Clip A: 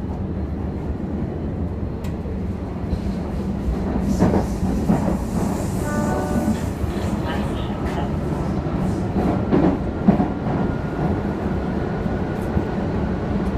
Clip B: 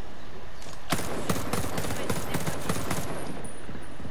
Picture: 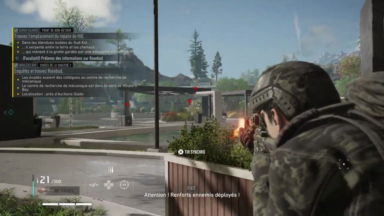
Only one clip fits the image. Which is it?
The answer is B